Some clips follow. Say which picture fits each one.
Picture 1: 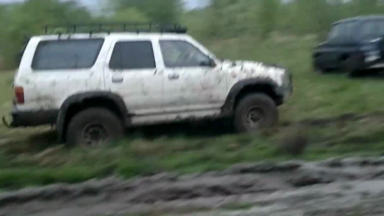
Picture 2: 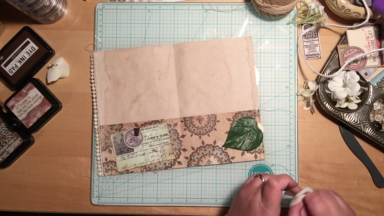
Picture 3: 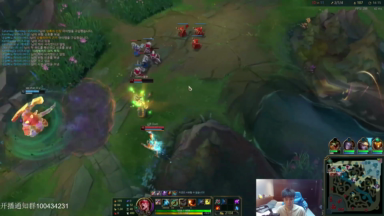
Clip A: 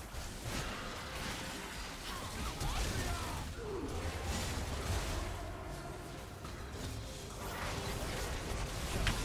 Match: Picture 3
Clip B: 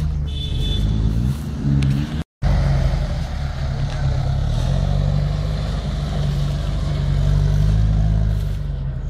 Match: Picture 1